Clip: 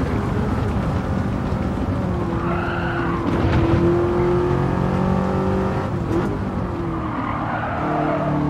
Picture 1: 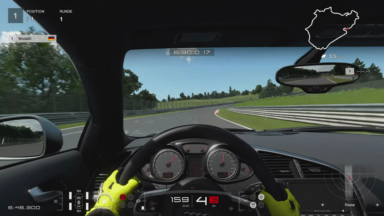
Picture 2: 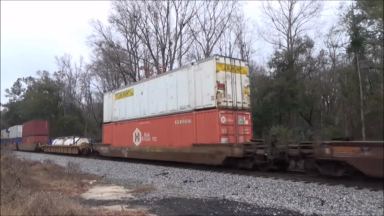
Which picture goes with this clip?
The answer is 1